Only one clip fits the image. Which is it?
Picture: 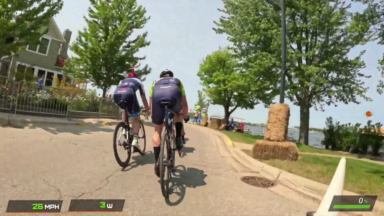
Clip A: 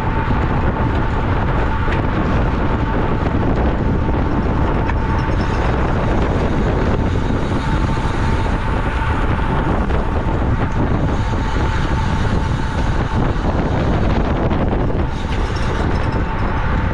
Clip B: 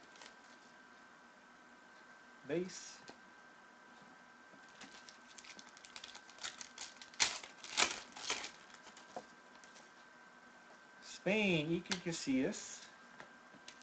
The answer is A